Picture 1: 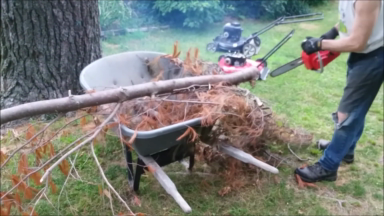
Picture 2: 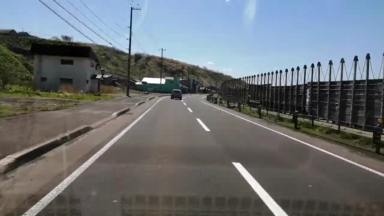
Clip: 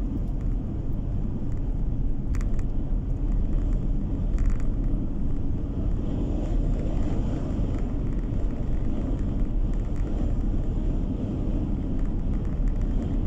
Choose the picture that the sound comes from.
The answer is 2